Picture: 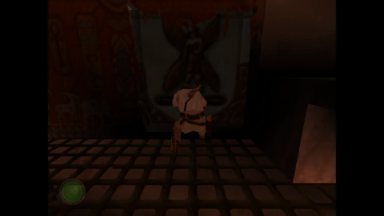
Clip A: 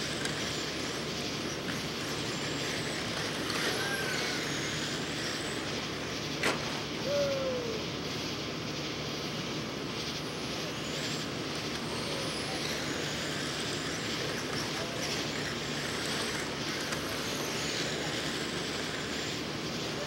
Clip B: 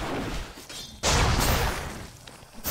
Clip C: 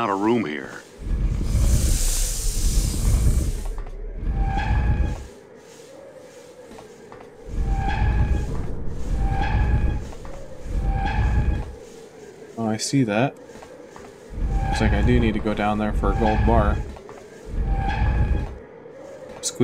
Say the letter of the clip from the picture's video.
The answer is C